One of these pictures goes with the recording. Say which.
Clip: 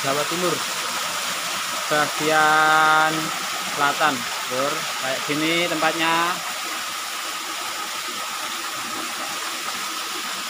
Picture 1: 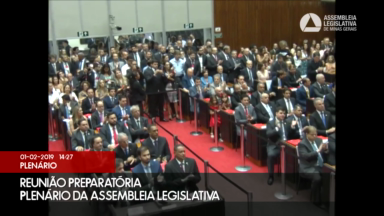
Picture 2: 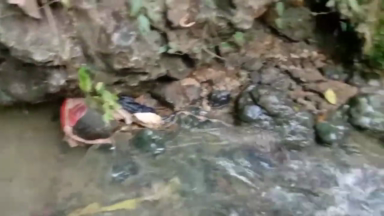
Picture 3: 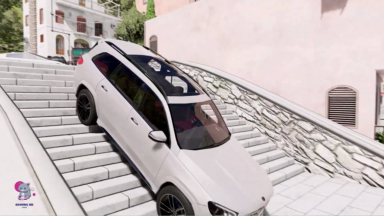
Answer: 2